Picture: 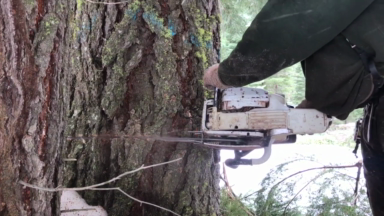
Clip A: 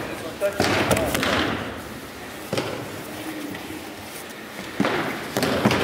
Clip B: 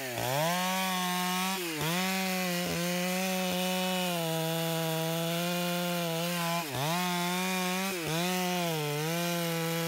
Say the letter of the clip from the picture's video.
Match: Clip B